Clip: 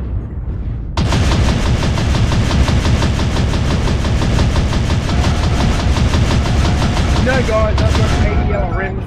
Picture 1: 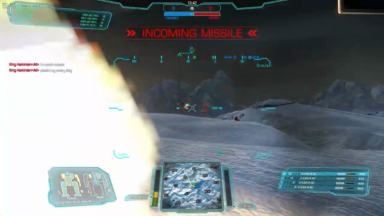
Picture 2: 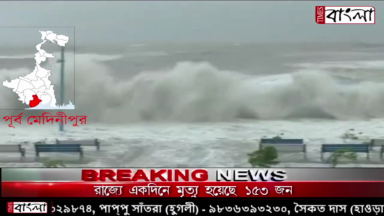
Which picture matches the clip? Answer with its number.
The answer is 1